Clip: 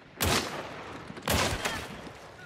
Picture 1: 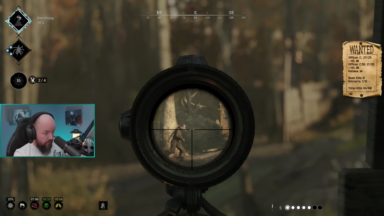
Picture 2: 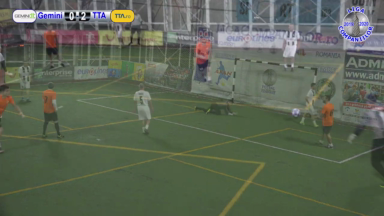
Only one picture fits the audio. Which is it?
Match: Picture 1